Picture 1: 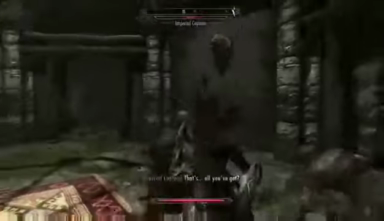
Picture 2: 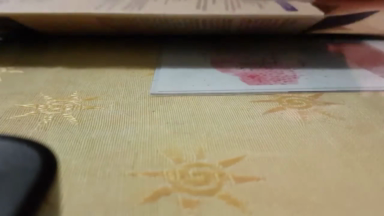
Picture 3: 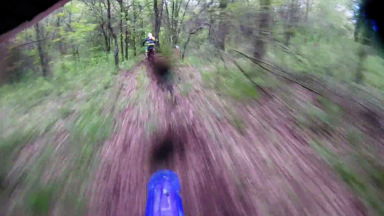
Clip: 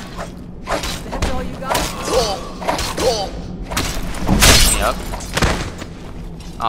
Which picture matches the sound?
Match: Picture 1